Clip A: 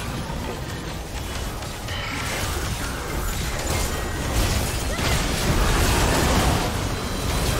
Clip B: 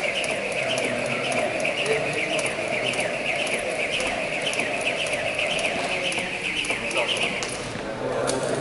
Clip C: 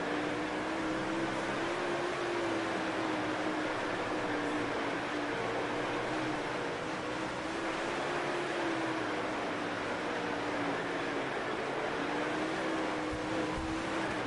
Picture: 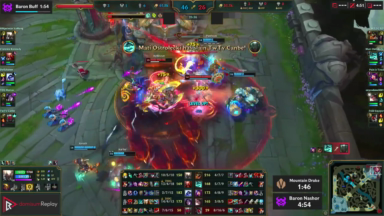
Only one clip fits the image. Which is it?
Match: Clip A